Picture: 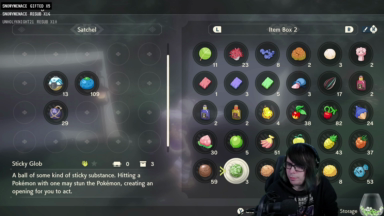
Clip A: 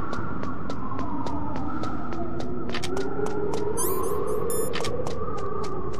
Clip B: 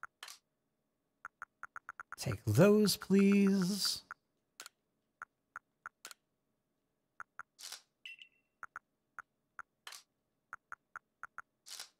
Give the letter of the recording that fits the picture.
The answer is B